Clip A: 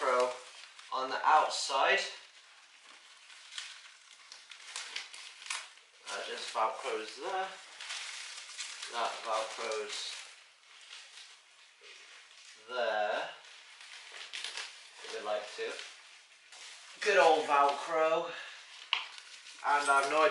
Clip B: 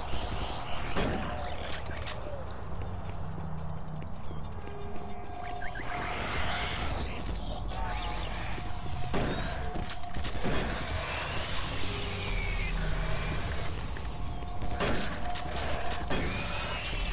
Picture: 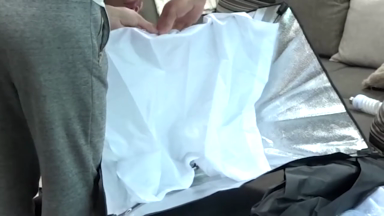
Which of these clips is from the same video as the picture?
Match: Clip A